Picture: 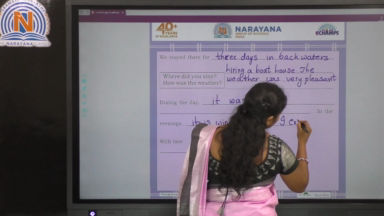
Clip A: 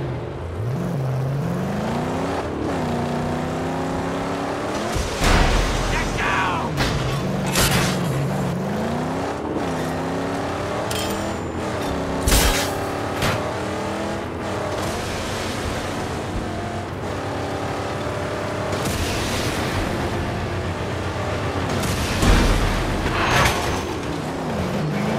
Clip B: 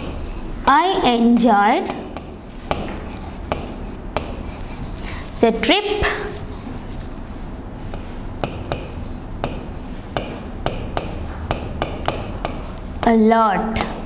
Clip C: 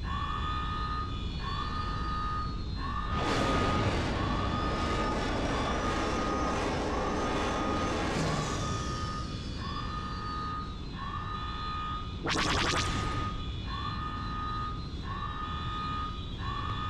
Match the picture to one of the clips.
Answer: B